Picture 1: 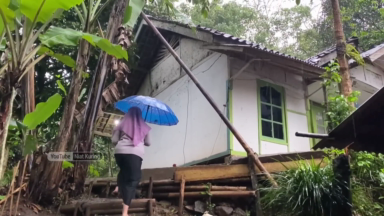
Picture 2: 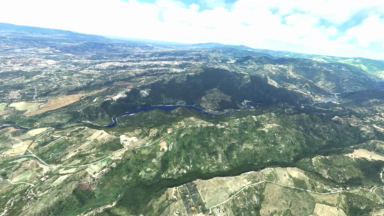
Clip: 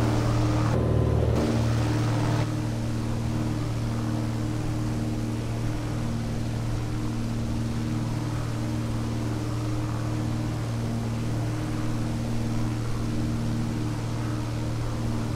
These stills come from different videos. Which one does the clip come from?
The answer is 2